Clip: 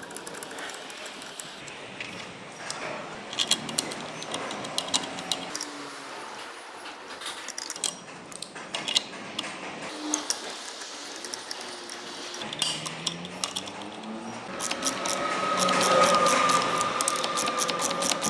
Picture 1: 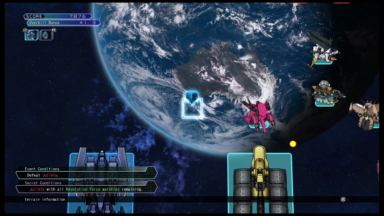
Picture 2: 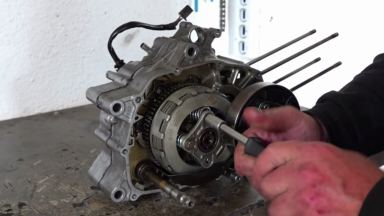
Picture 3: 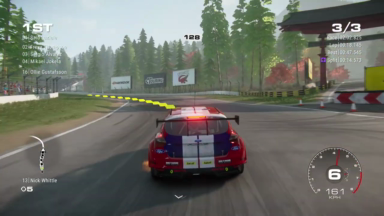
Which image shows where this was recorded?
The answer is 2